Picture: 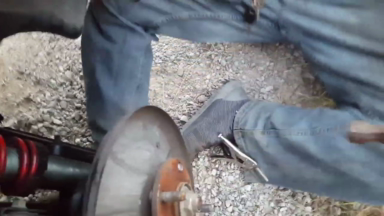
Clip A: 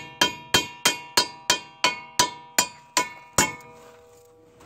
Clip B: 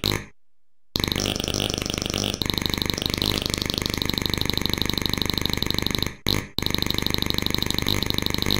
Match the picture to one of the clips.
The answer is A